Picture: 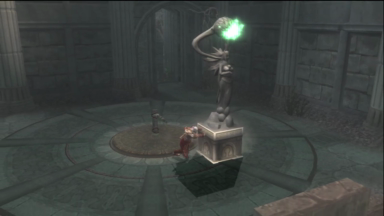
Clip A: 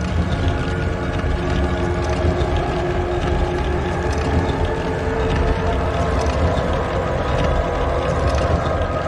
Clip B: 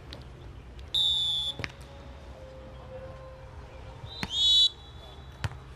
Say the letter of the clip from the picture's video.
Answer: A